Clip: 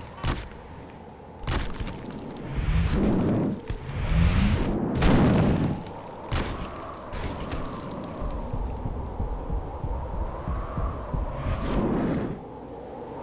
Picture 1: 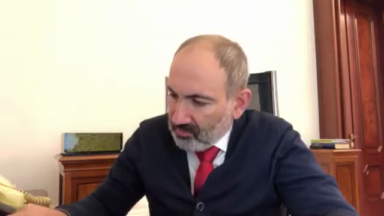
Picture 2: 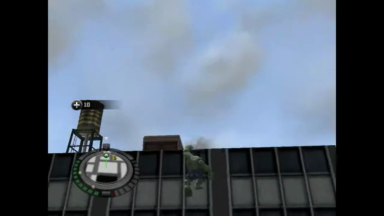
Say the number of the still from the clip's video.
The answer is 2